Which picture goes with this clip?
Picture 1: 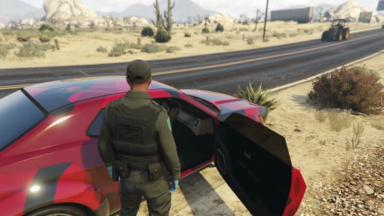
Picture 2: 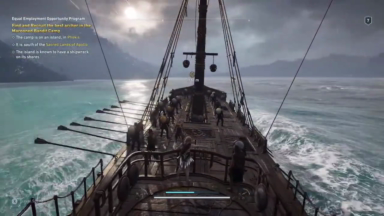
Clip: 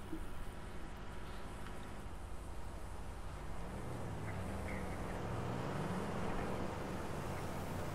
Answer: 1